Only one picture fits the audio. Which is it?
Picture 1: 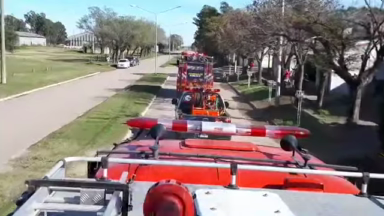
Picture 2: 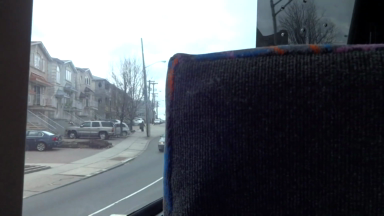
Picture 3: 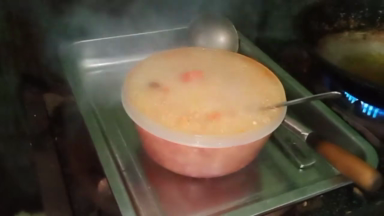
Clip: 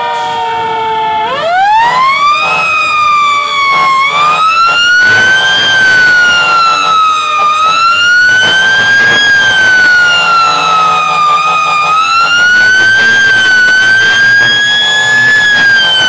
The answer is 1